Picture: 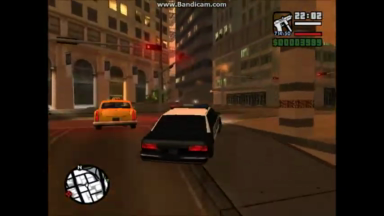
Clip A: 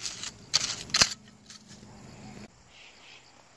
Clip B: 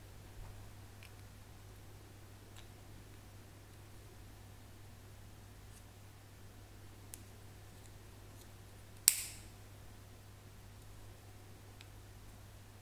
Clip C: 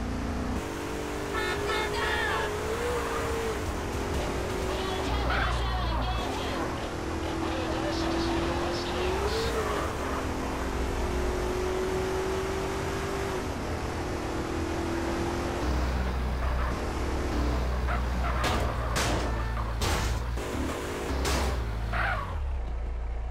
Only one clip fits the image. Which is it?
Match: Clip C